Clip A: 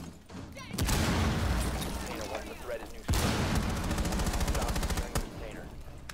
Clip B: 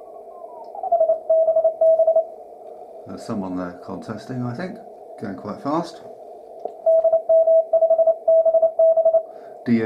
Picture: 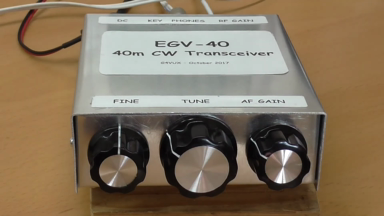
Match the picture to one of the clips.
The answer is B